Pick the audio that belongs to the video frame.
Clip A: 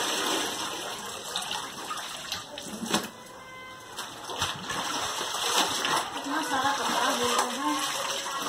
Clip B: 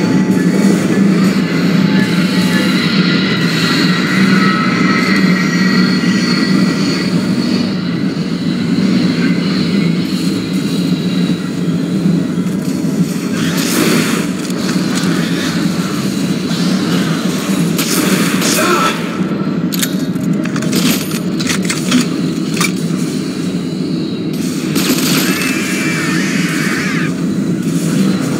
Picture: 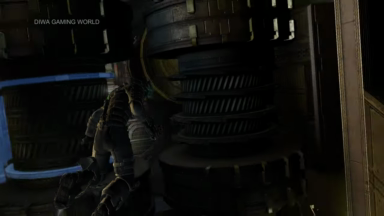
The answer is B